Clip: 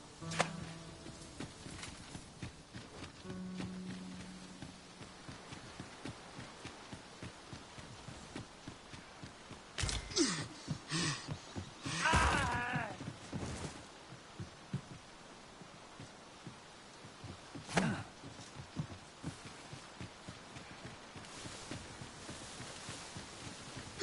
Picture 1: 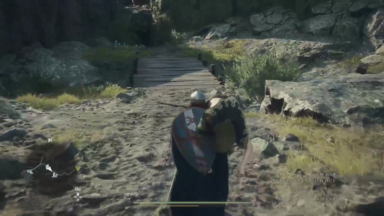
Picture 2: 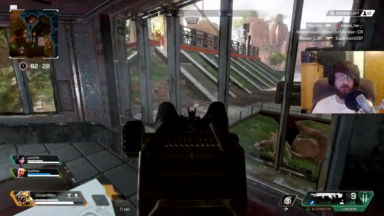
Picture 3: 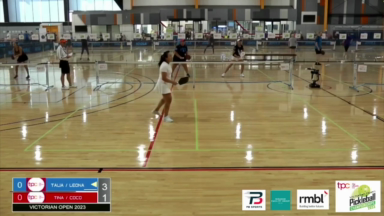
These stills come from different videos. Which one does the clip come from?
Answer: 1